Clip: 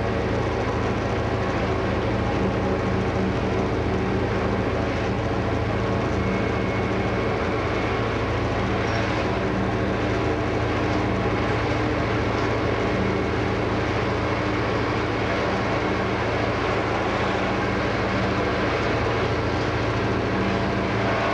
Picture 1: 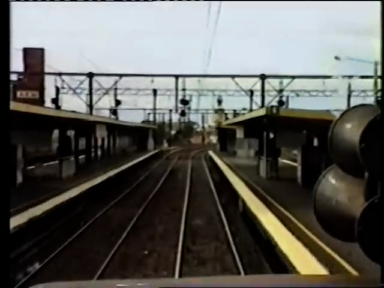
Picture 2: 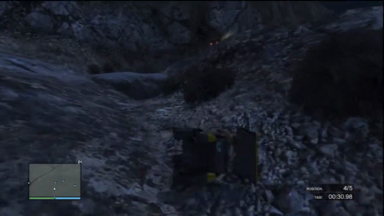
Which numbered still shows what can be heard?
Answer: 1